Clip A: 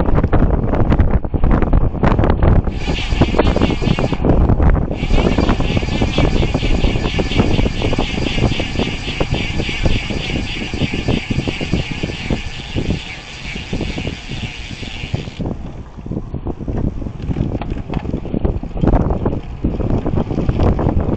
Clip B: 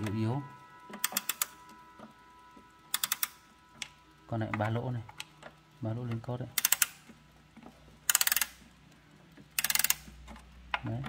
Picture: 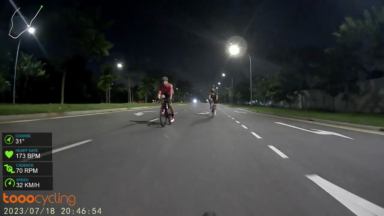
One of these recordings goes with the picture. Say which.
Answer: A